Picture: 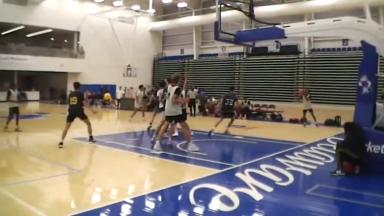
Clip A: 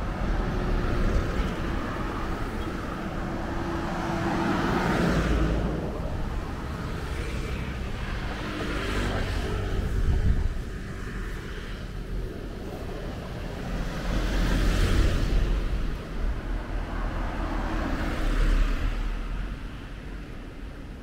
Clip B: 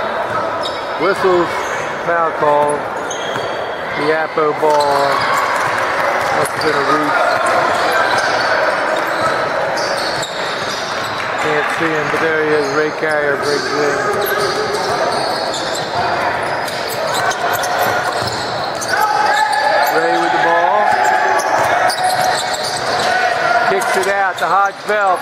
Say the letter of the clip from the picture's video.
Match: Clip B